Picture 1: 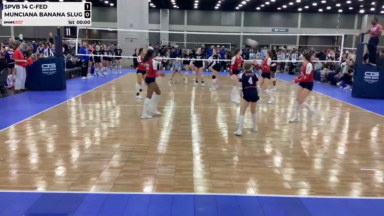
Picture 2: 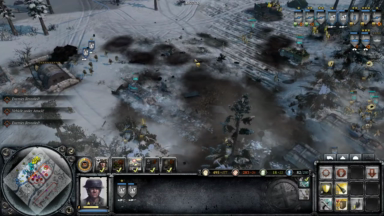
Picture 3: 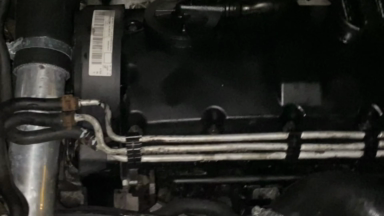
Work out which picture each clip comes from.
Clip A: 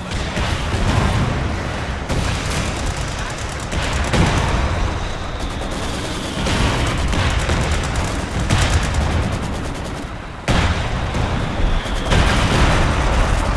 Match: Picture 2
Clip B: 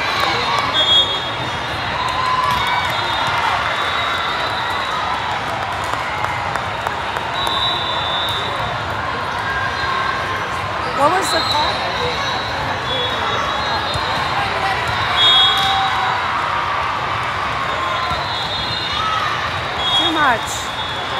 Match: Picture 1